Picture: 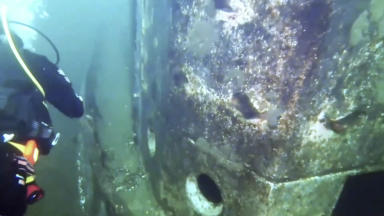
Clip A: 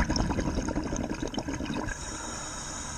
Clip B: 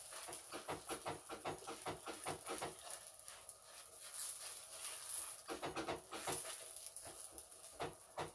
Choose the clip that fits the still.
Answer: A